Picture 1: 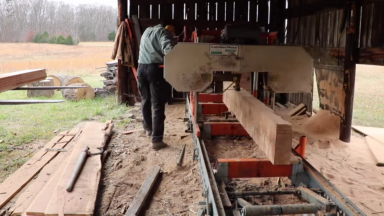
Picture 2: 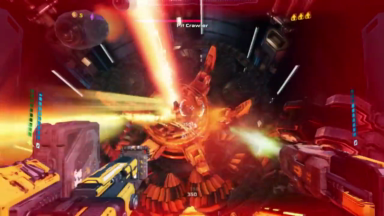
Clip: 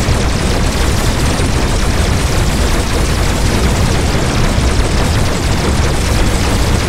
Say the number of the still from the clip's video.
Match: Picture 2